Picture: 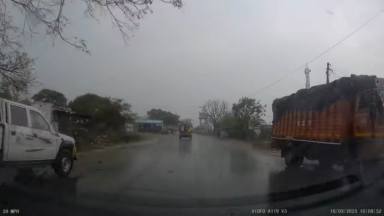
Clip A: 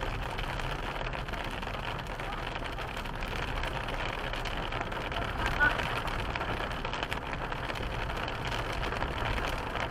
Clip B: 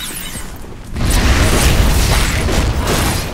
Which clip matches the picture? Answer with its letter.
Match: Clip A